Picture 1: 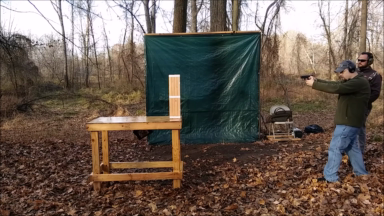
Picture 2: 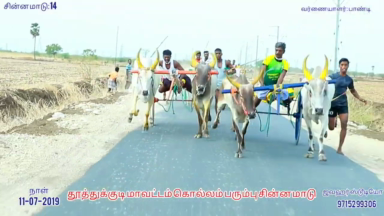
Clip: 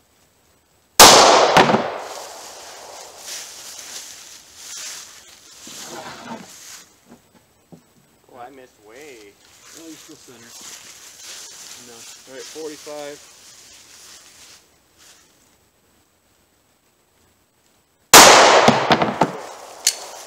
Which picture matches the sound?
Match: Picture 1